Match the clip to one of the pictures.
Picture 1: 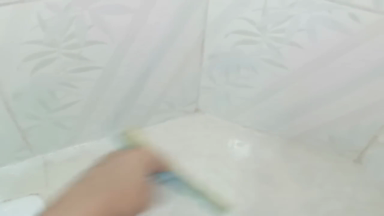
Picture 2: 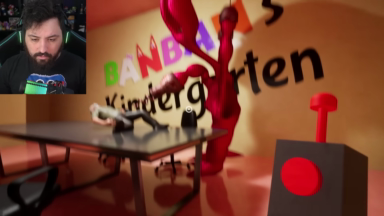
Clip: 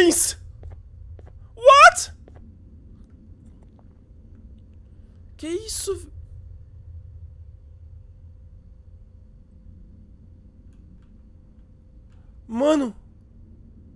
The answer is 2